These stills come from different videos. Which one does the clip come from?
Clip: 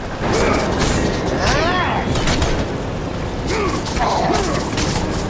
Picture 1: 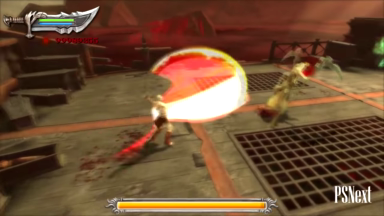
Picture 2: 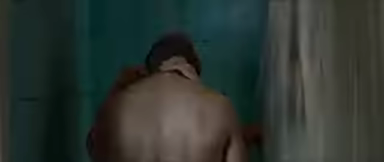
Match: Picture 1